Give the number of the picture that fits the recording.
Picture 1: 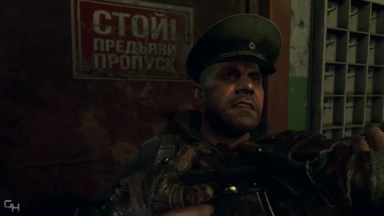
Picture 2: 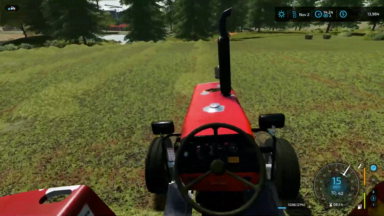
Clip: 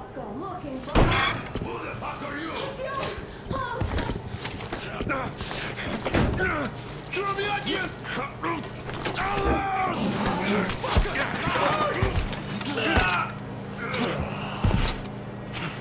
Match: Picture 1